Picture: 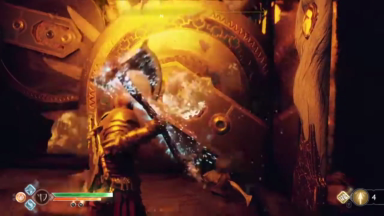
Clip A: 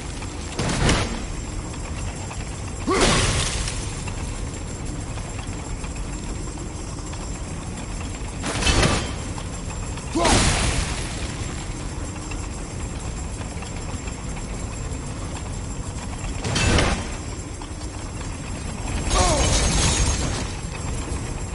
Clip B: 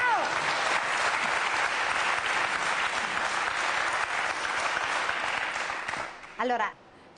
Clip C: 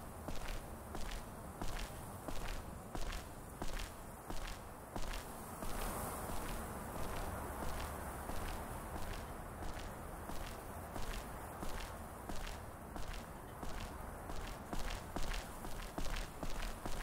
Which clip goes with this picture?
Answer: A